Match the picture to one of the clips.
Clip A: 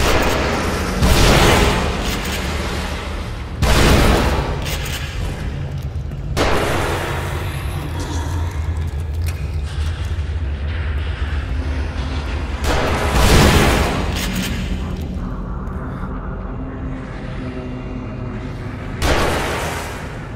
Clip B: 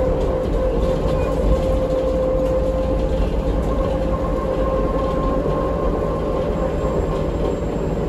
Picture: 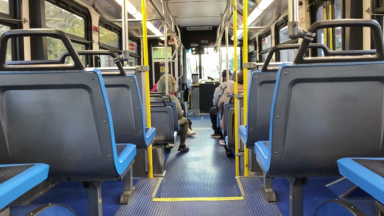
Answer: B